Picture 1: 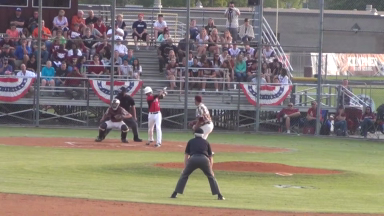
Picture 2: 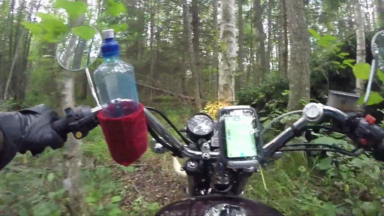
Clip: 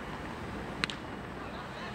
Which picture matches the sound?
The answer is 1